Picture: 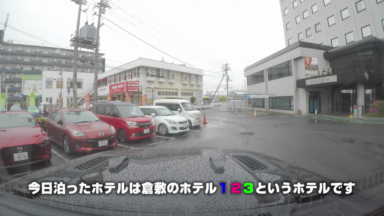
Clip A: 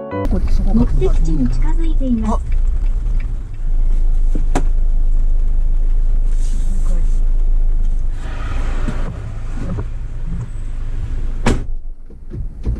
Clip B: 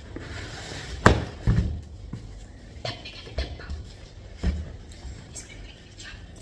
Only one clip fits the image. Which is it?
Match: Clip A